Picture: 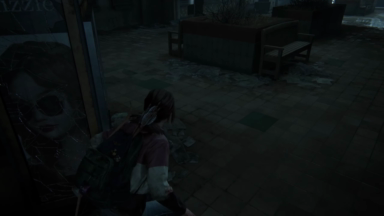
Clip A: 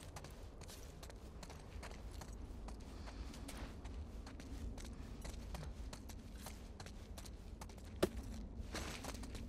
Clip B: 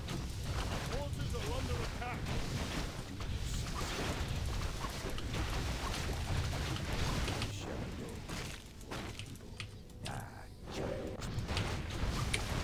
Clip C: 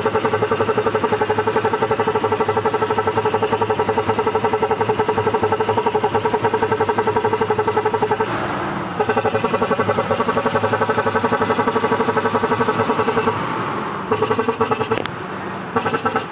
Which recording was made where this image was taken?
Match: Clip A